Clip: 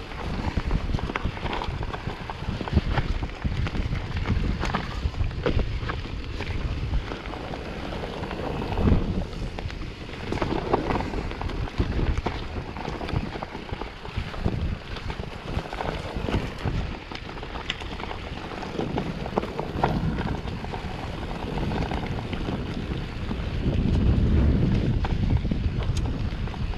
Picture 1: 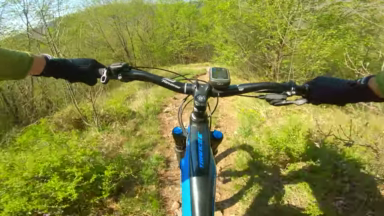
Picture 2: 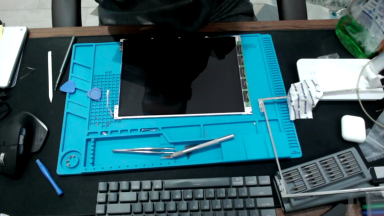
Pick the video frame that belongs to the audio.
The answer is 1